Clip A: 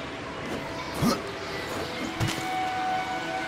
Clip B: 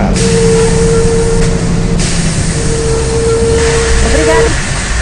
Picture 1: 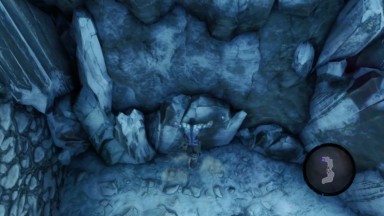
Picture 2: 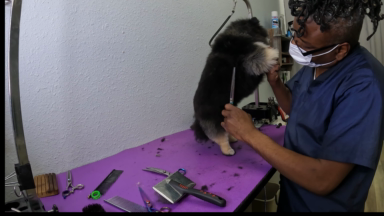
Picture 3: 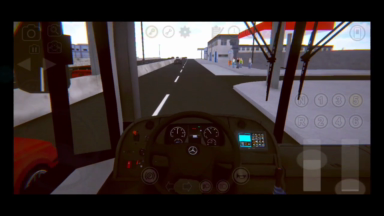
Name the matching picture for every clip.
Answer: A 1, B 3